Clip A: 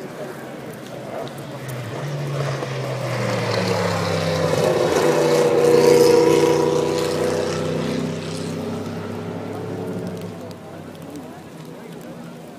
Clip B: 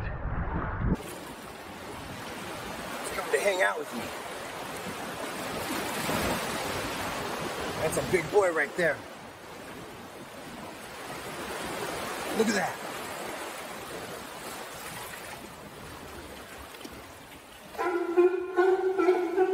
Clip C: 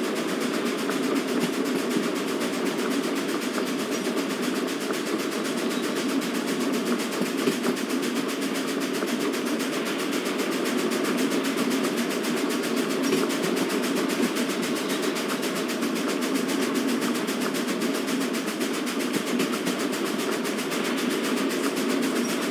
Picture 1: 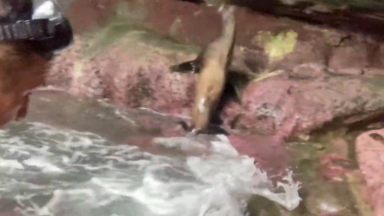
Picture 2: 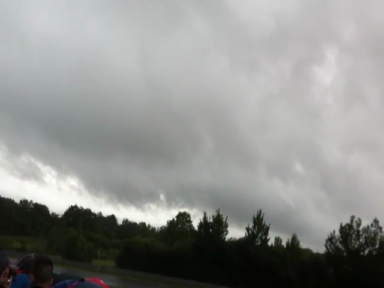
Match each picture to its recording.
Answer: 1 B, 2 A